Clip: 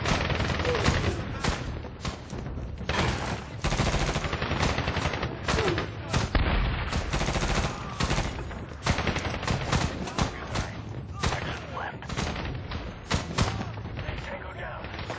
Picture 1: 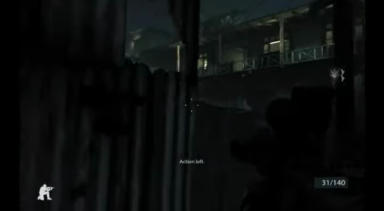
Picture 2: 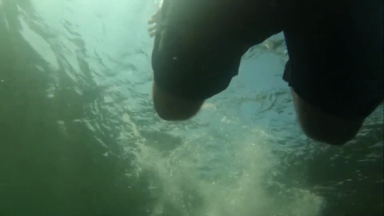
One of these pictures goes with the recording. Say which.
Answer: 1